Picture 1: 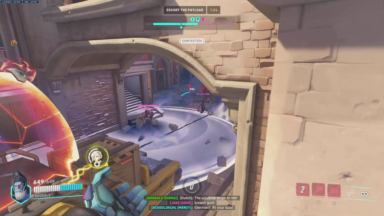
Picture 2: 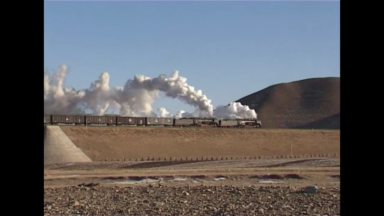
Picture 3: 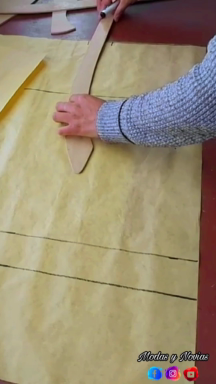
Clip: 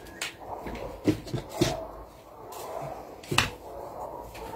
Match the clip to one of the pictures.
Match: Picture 3